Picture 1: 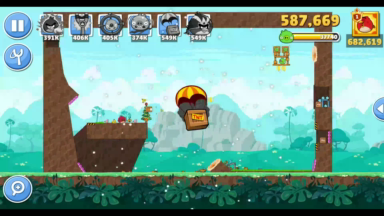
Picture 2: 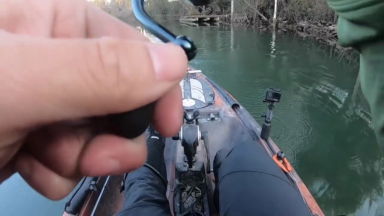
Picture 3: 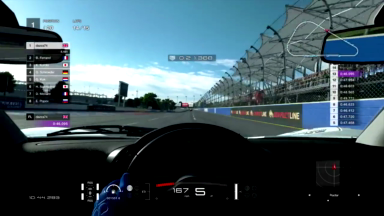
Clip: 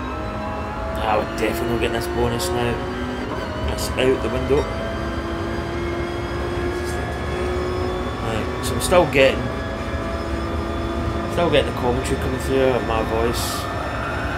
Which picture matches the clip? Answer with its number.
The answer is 3